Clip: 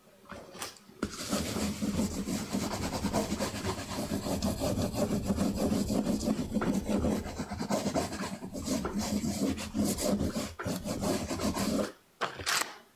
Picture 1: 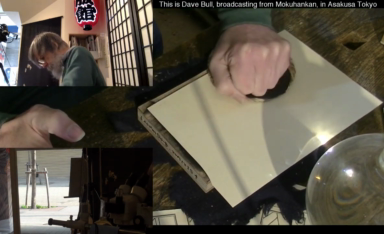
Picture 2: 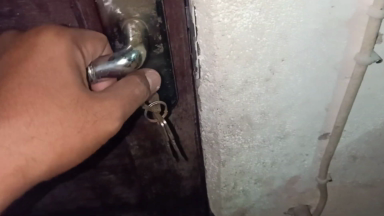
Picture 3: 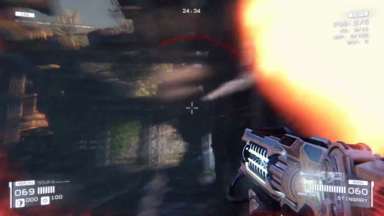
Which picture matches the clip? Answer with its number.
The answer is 1